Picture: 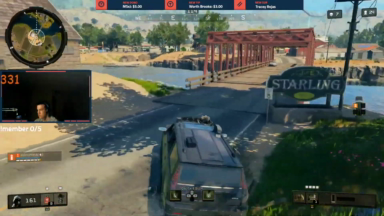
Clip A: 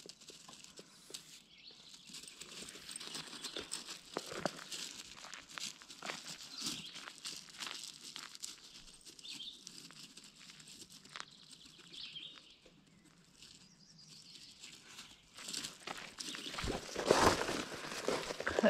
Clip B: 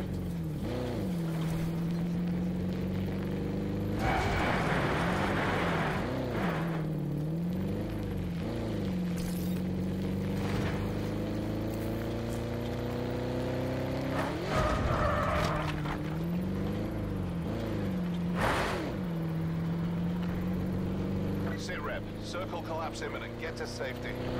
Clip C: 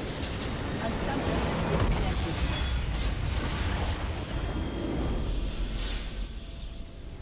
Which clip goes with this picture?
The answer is B